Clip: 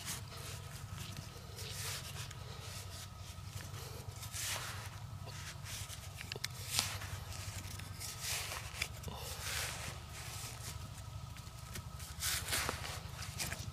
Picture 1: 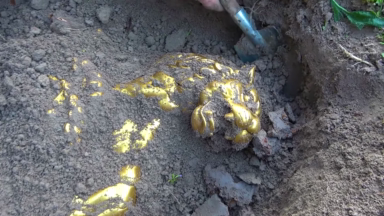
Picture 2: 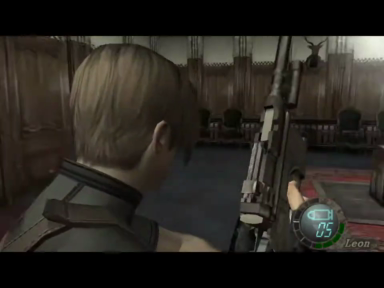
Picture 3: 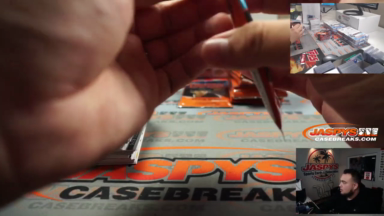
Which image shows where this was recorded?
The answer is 1